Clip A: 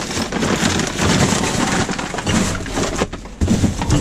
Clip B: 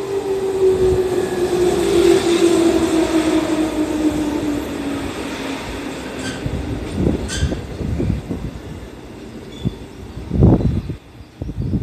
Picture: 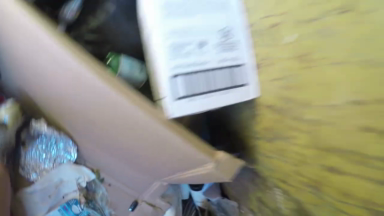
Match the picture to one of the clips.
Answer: A